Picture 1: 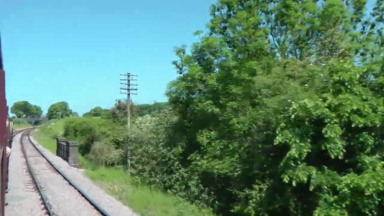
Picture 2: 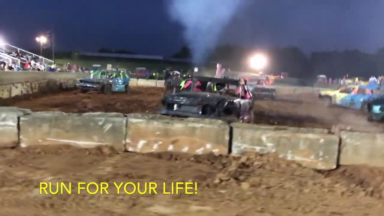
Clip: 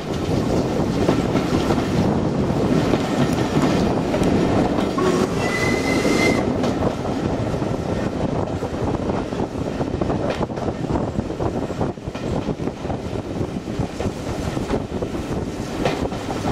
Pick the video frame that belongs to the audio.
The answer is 1